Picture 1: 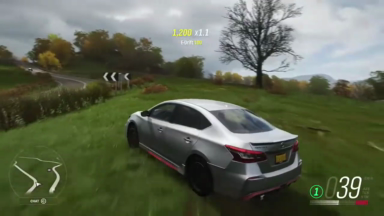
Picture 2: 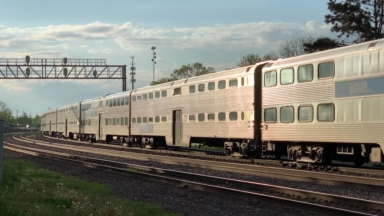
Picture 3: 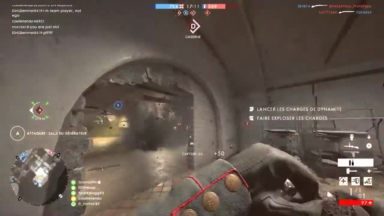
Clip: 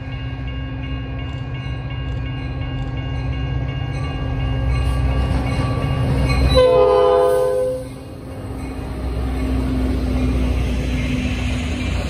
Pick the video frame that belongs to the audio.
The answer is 2